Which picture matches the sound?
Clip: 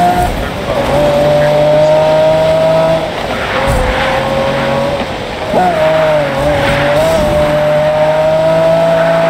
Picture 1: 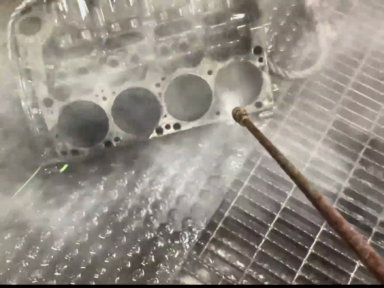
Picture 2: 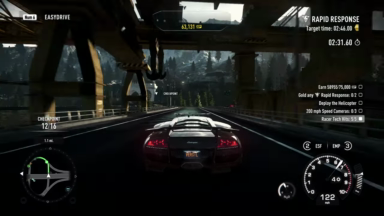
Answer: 2